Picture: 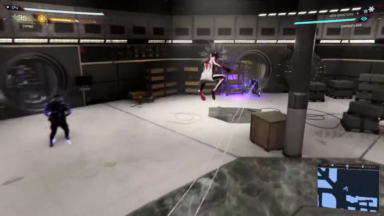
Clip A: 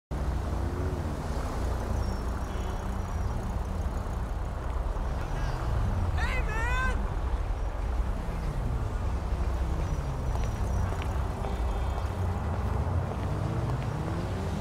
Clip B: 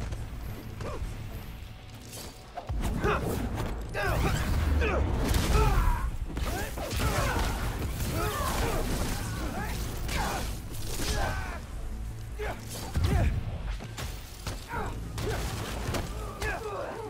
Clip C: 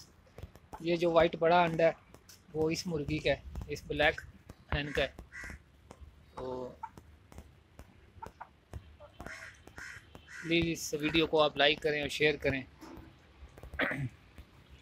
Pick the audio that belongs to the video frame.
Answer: B